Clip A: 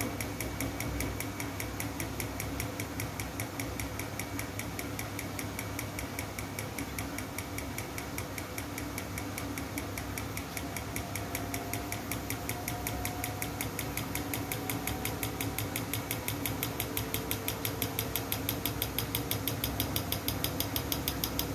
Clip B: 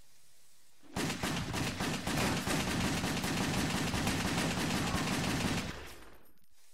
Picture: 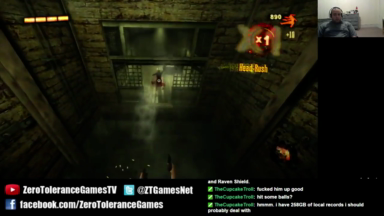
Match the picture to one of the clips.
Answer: B